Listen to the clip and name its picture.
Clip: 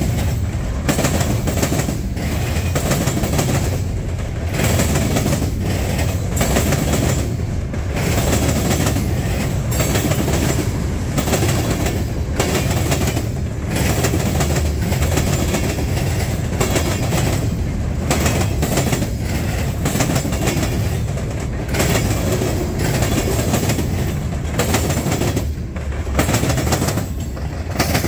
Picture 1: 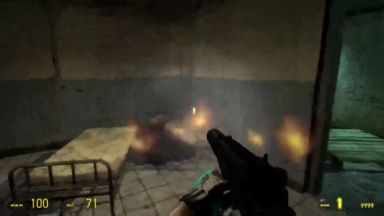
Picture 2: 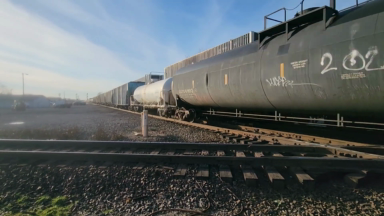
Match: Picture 2